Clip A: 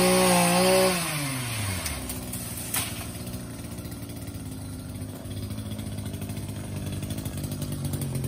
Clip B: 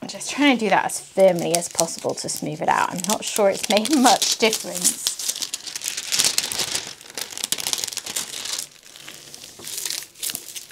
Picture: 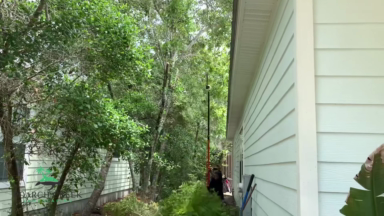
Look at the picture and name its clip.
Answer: A